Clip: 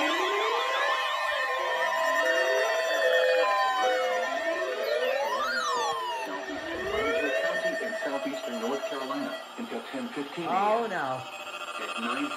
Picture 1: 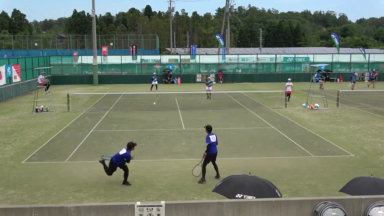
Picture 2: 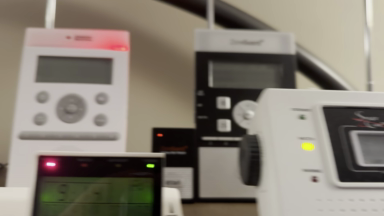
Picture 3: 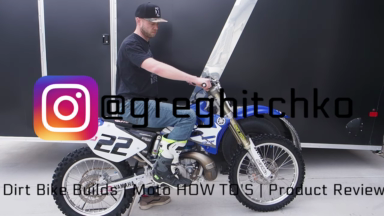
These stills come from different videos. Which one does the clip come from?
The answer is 2